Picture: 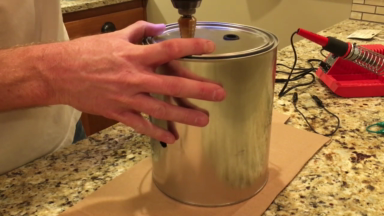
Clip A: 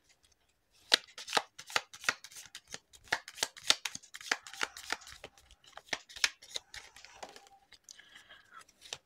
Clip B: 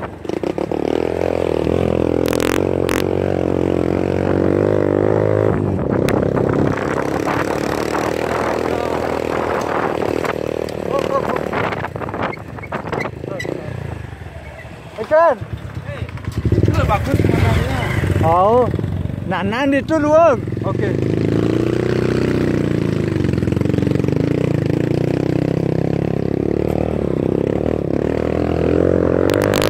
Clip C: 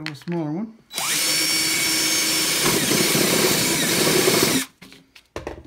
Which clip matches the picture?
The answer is C